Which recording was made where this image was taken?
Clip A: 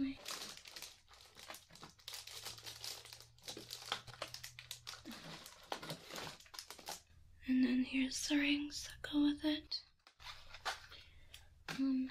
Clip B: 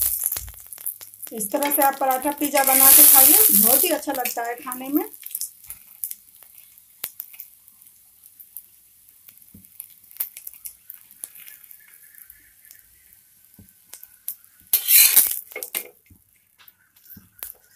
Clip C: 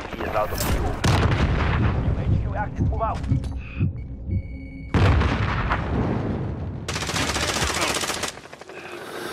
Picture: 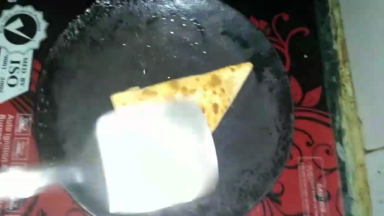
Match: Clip B